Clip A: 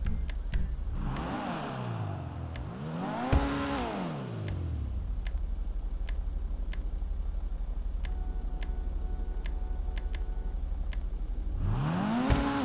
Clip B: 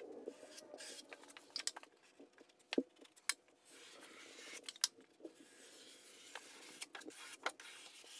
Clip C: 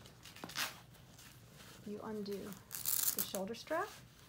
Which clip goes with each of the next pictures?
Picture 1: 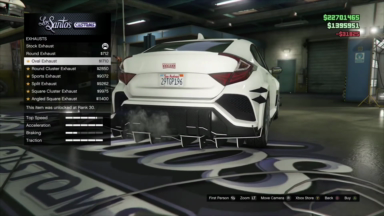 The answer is A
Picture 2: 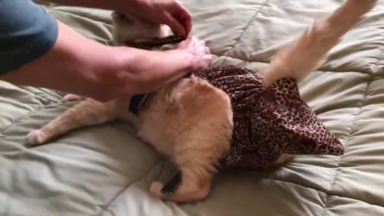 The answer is C